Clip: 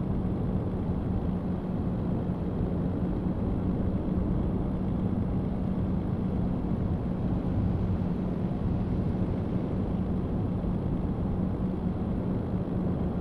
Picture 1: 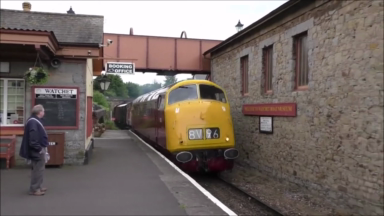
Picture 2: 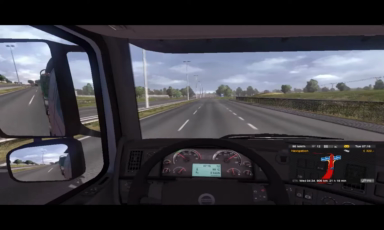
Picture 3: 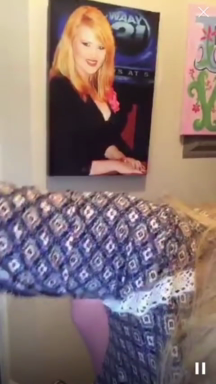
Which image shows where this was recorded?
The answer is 2